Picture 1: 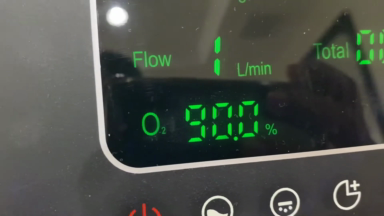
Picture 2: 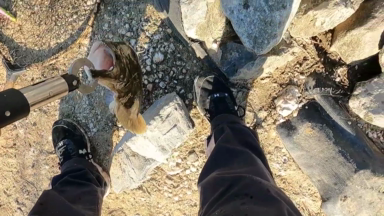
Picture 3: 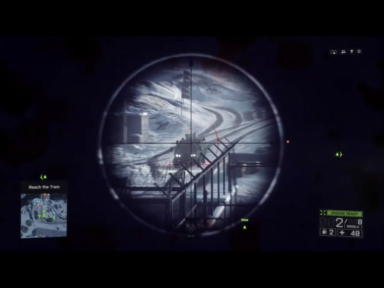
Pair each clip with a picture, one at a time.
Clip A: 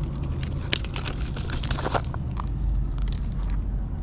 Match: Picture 2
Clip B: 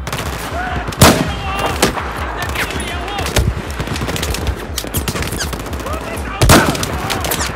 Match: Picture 3